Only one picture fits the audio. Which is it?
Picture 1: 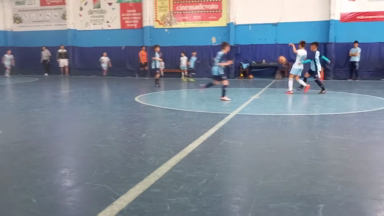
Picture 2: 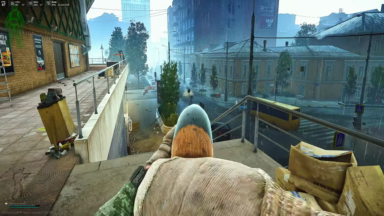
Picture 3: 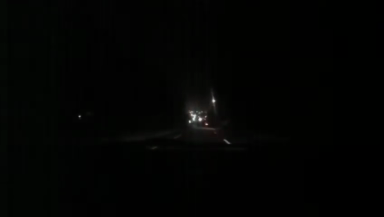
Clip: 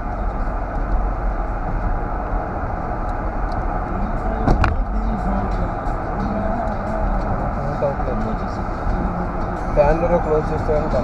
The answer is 3